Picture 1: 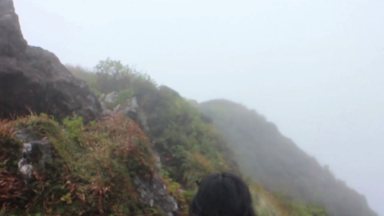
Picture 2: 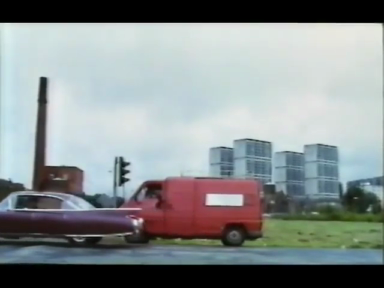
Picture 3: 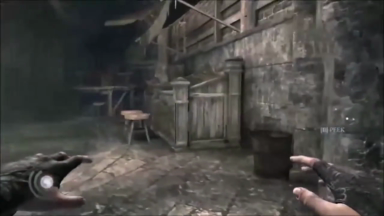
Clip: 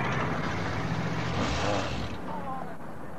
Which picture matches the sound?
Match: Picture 2